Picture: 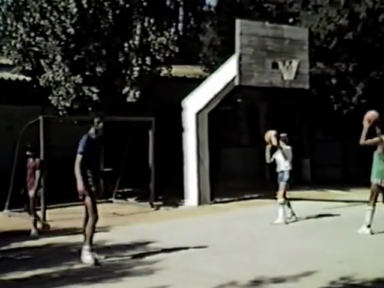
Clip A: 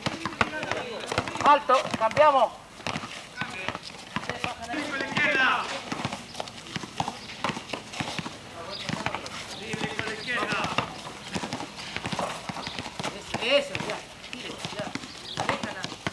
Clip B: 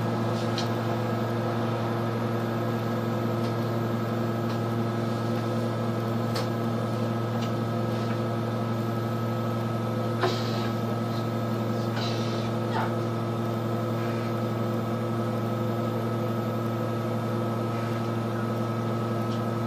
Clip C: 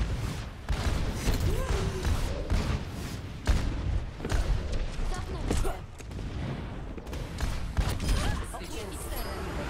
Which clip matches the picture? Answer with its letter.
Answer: A